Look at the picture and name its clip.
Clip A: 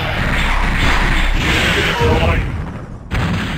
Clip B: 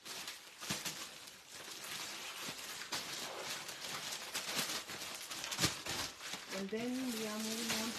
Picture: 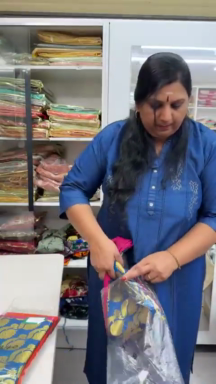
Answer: B